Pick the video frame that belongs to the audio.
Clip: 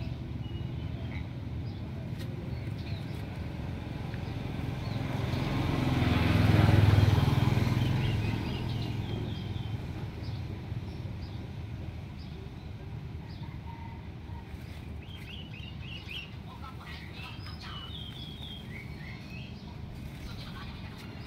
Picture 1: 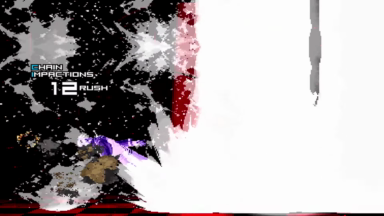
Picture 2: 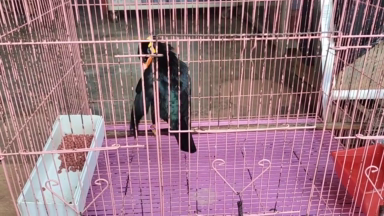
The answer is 2